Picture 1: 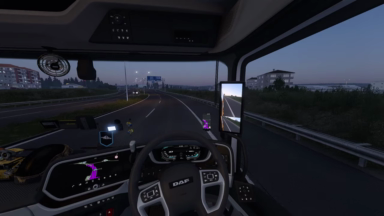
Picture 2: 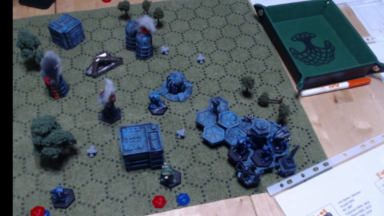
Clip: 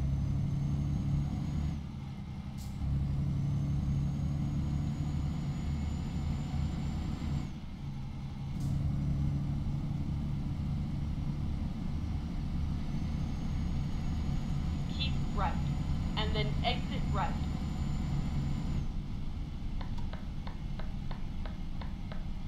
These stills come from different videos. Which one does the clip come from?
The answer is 1